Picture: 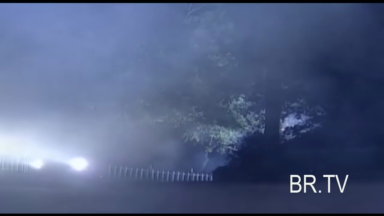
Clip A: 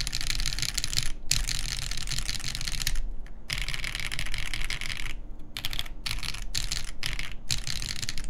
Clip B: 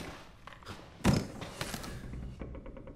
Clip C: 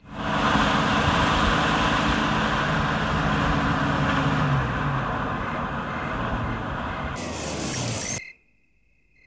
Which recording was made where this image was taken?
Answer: C